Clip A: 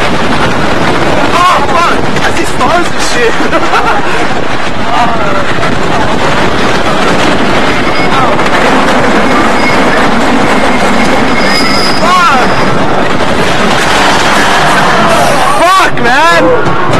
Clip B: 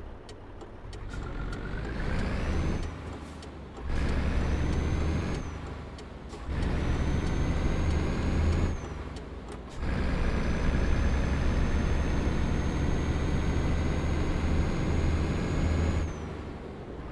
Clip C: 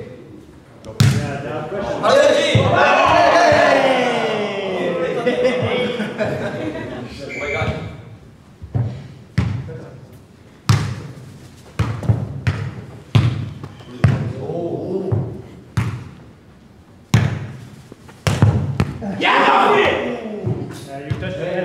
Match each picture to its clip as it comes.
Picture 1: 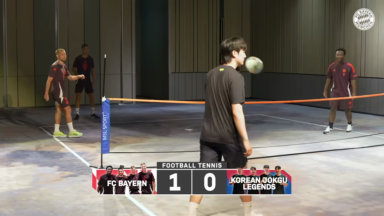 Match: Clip C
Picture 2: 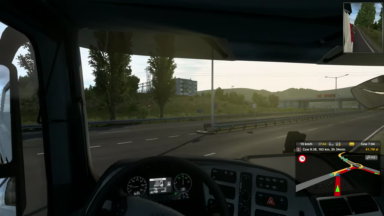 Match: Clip B